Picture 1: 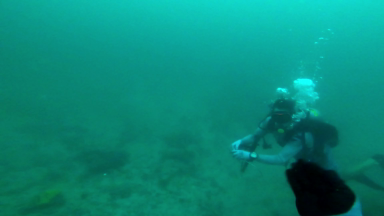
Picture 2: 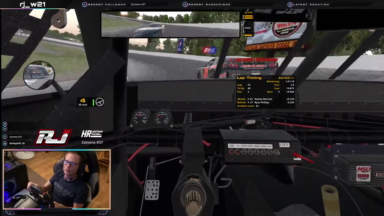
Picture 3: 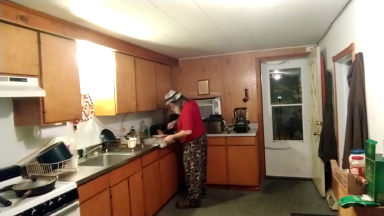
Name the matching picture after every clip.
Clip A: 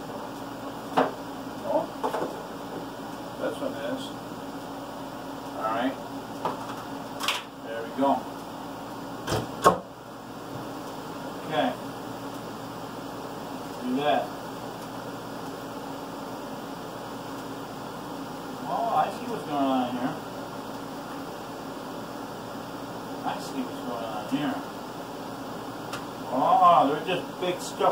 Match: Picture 3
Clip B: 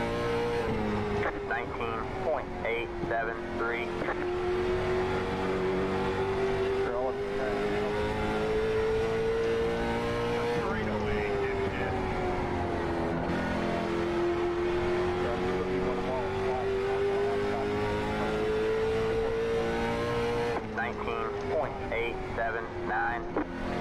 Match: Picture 2